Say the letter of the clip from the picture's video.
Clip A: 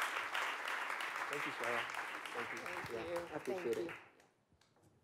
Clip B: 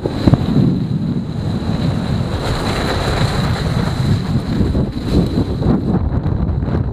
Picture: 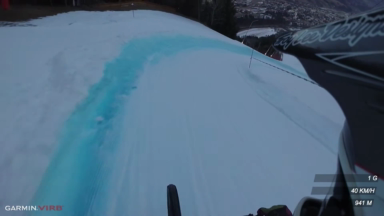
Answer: B